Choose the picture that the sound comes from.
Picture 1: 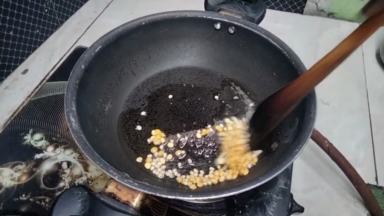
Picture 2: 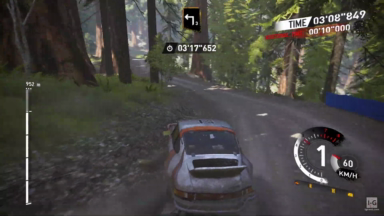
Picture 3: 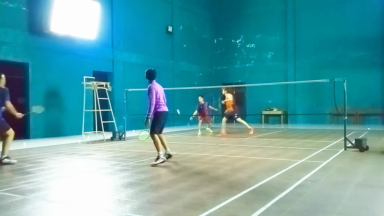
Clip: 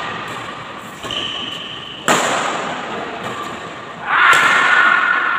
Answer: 3